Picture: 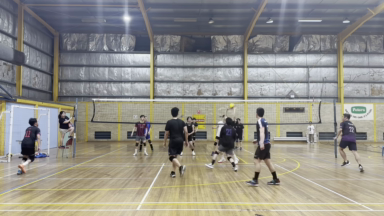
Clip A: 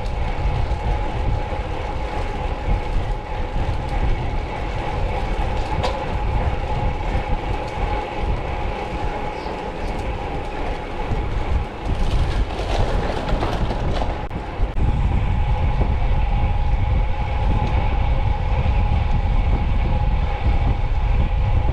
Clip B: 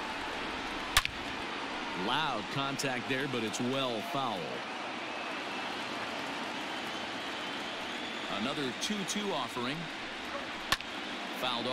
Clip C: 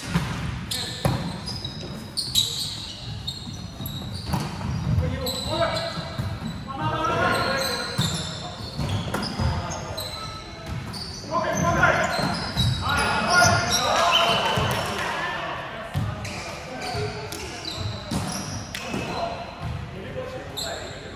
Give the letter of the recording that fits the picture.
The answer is C